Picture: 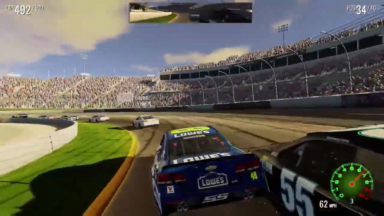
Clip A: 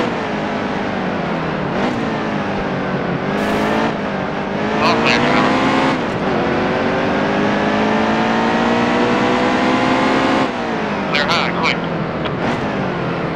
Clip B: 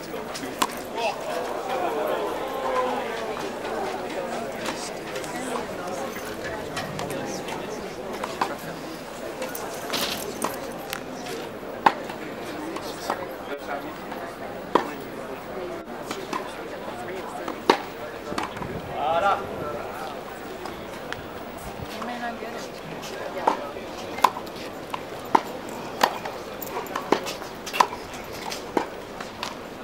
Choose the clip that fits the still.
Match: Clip A